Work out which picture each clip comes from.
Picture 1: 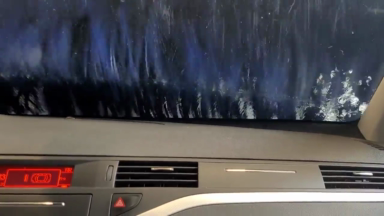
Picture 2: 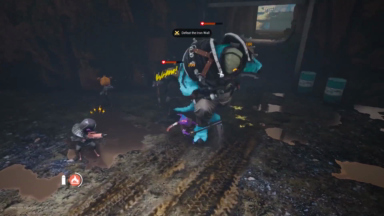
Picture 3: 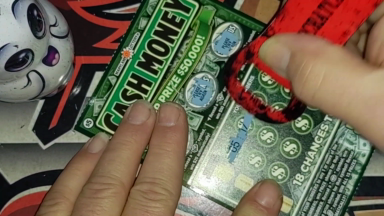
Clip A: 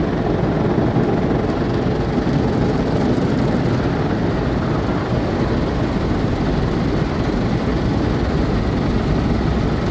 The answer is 1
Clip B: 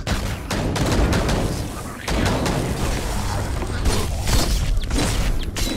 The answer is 2